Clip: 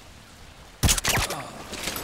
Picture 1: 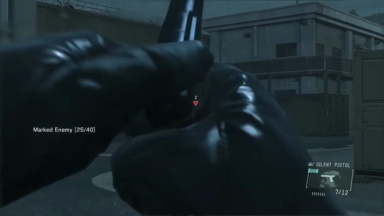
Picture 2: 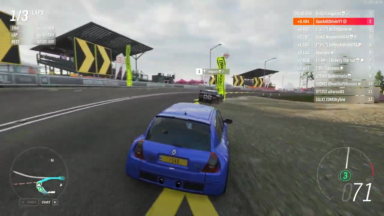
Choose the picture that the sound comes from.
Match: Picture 1